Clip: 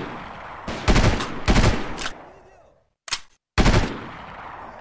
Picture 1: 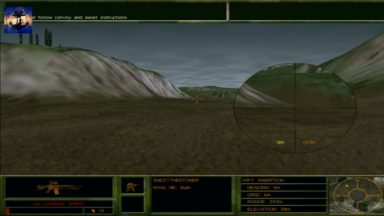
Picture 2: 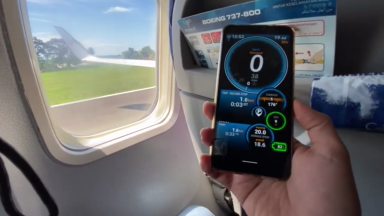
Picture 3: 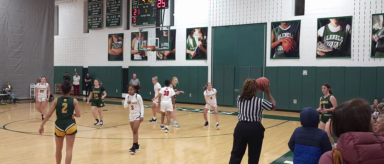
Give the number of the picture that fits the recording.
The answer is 1